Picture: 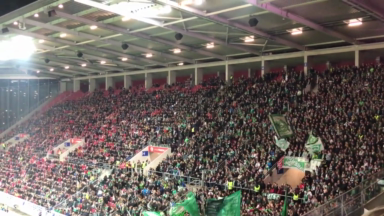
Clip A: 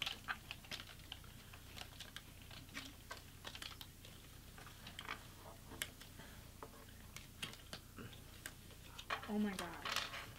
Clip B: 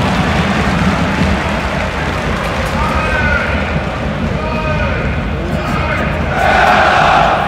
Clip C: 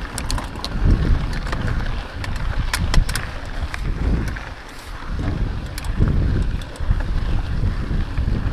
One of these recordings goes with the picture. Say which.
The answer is B